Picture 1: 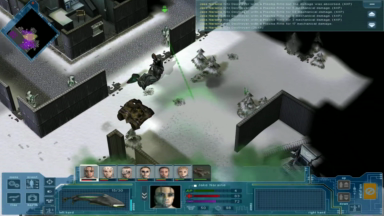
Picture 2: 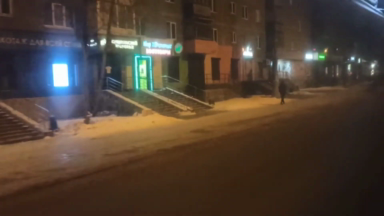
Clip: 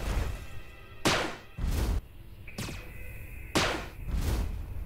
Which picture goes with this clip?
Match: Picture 1